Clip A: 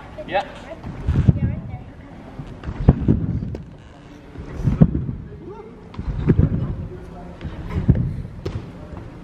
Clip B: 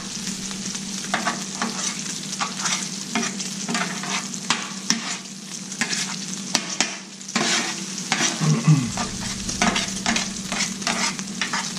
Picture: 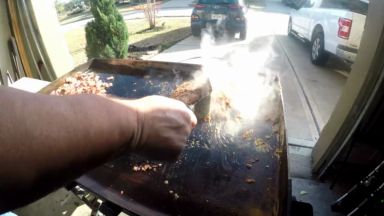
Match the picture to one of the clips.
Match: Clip B